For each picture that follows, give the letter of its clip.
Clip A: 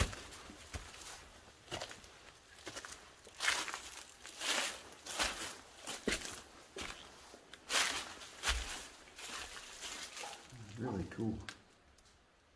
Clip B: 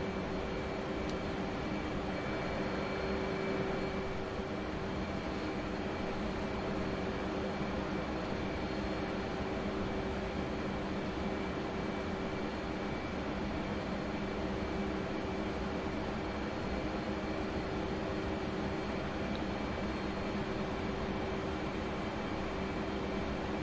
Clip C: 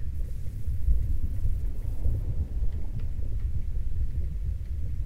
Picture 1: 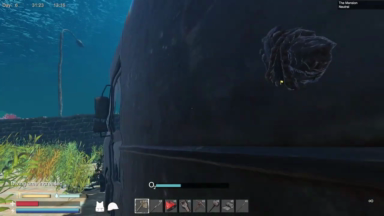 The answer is C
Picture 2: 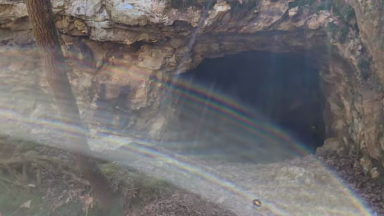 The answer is A